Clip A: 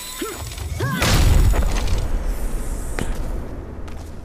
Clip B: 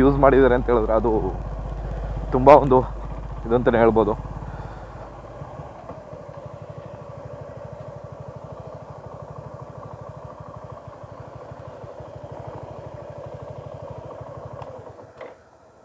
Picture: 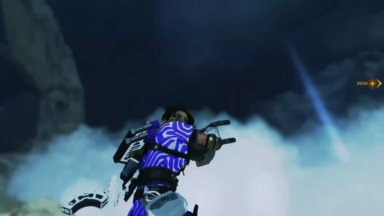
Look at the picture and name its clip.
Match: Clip A